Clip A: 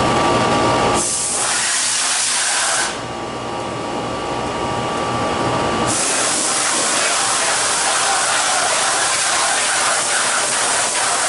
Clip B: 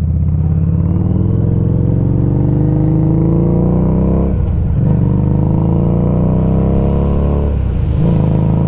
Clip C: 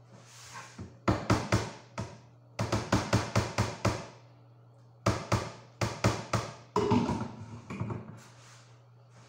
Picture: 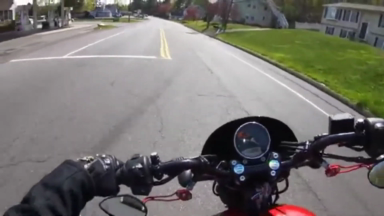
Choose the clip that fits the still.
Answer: B